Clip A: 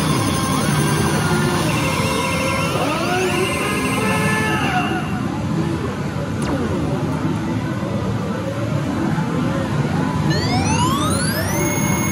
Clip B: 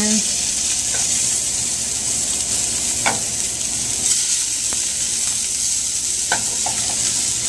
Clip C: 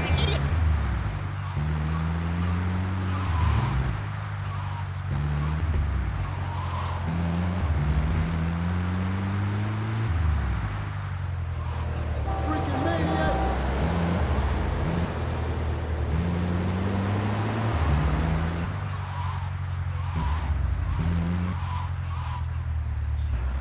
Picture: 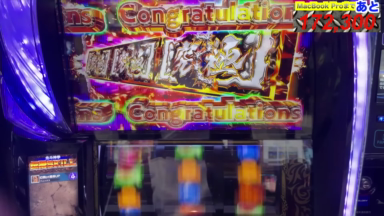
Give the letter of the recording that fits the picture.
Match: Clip A